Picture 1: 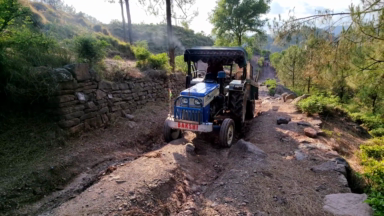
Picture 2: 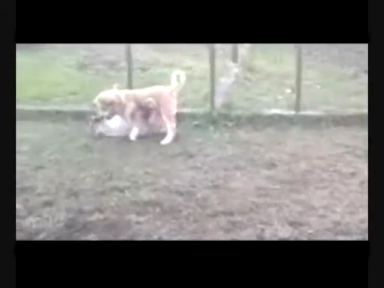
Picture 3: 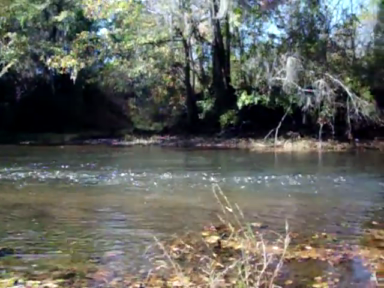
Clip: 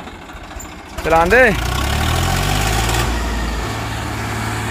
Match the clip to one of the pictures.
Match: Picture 1